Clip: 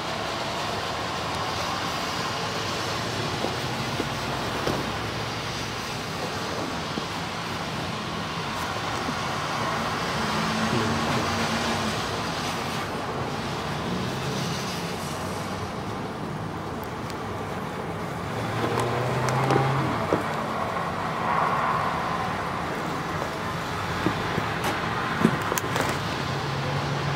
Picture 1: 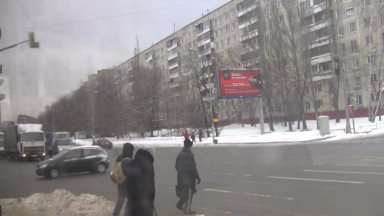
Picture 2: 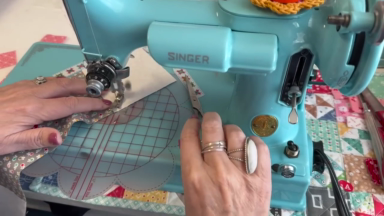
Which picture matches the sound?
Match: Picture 1